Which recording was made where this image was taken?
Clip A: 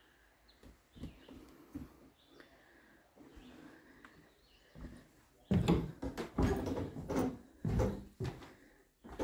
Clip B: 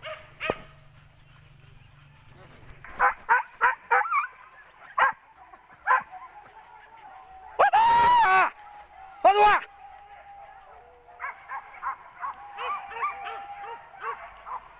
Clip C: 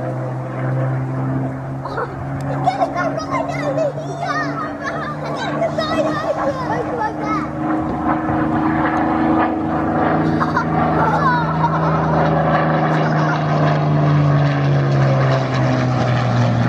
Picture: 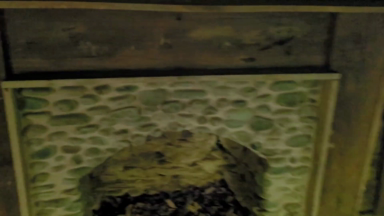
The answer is A